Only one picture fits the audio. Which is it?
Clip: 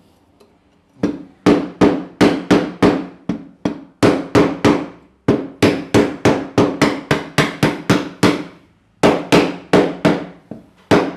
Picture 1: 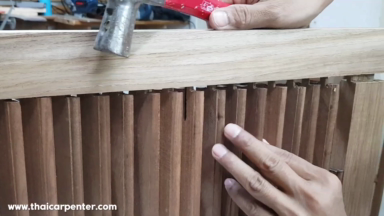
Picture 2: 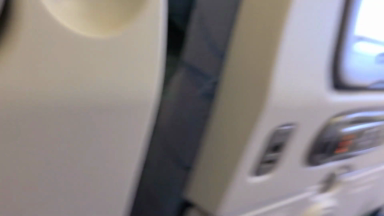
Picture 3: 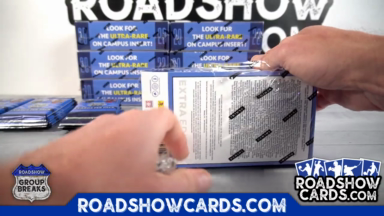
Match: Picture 1